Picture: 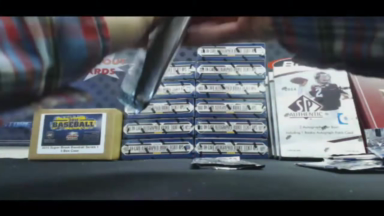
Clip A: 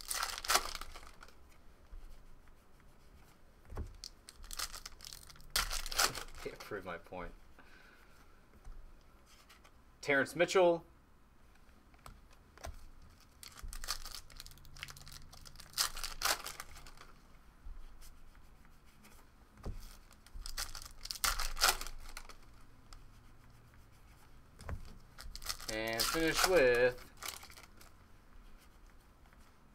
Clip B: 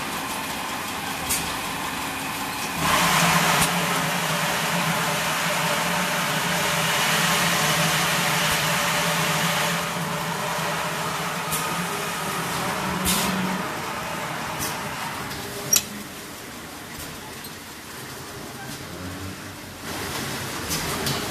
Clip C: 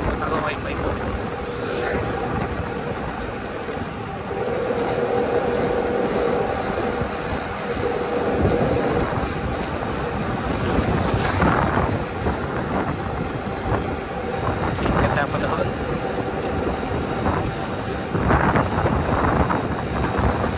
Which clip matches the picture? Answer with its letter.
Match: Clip A